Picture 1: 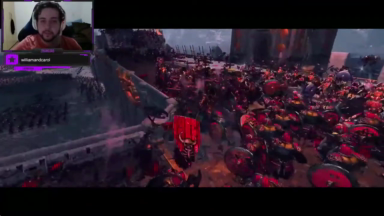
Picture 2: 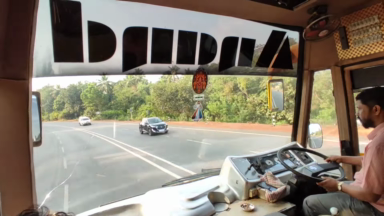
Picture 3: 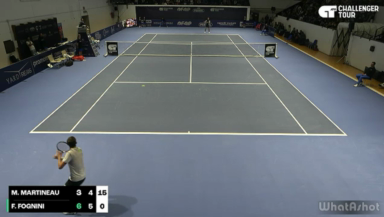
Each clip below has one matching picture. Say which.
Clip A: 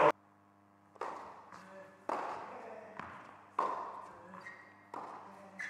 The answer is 3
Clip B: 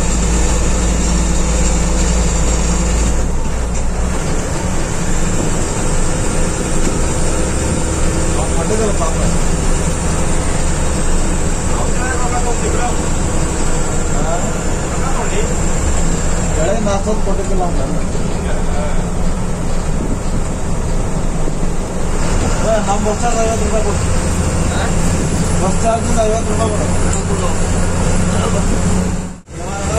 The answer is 2